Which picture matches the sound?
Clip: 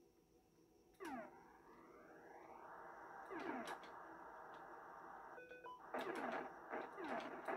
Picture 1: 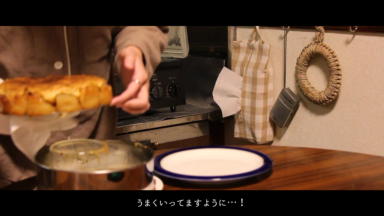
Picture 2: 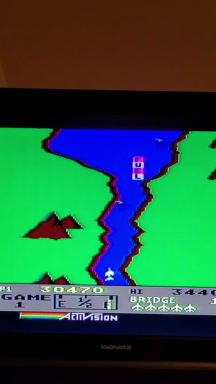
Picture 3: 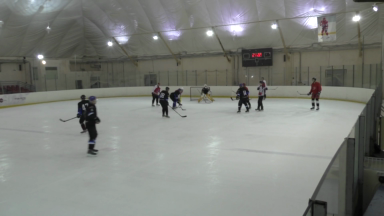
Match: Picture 2